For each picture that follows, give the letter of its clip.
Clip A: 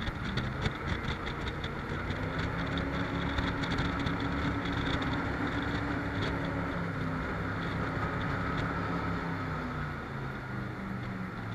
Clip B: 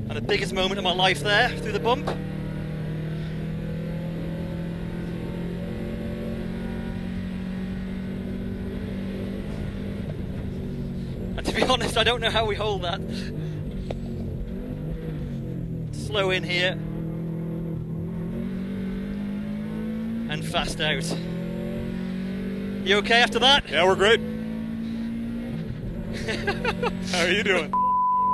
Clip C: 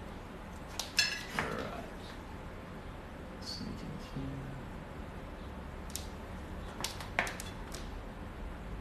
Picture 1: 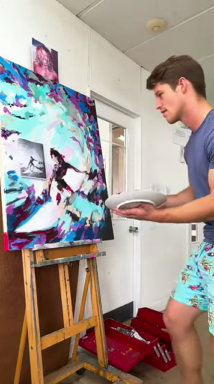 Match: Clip C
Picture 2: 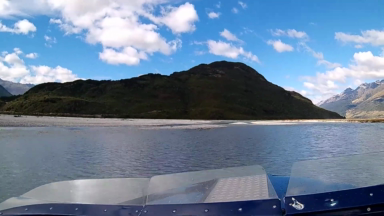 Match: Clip A